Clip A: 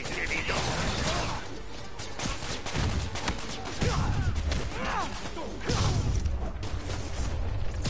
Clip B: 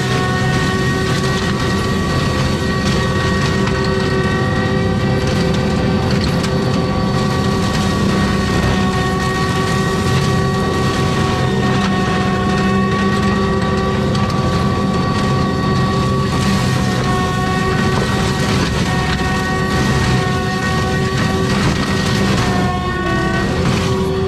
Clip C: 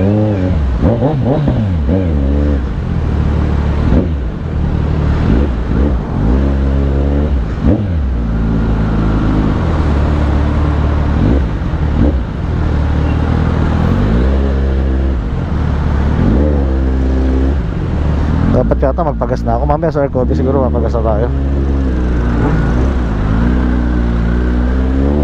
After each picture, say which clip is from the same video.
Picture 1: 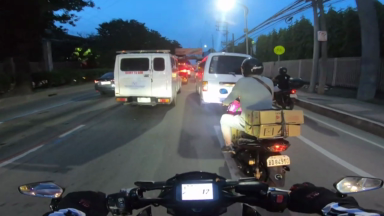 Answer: C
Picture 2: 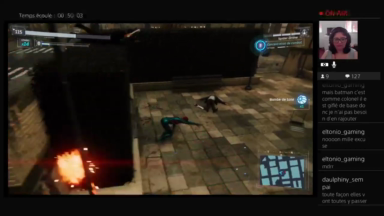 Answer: A